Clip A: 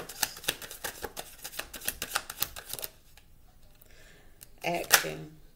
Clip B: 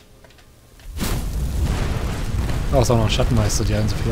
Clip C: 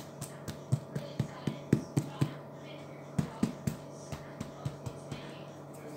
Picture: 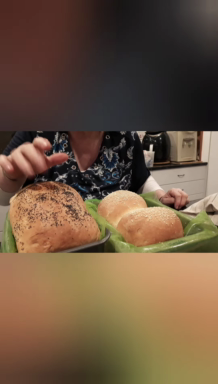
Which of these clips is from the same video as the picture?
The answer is C